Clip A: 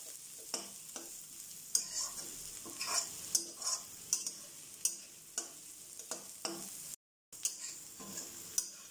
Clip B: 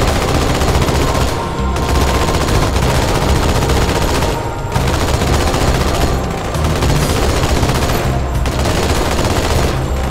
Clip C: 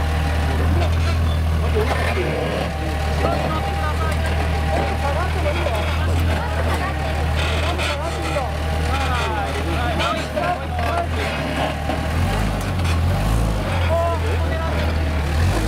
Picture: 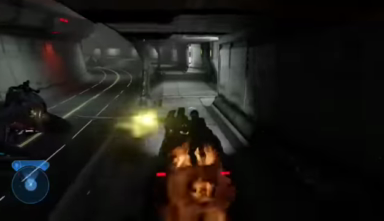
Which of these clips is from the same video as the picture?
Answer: B